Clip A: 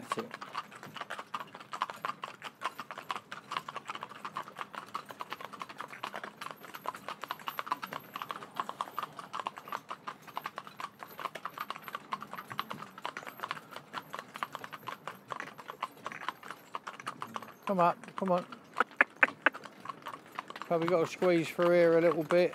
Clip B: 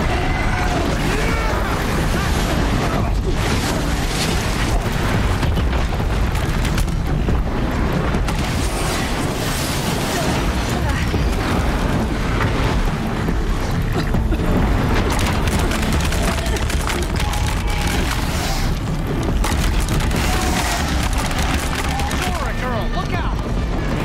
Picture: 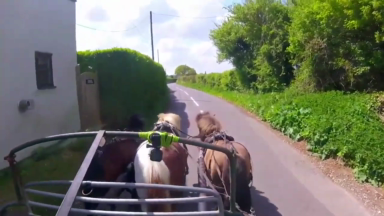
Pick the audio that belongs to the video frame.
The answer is A